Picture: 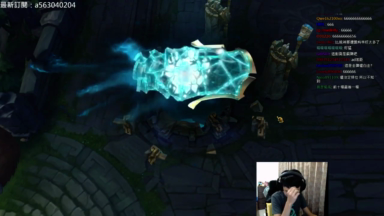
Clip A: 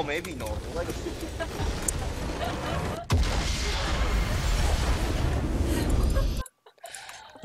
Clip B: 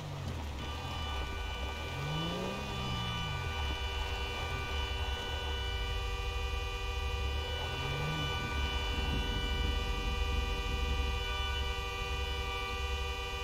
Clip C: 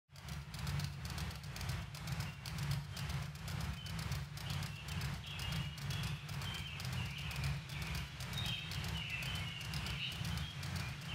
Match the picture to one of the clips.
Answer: A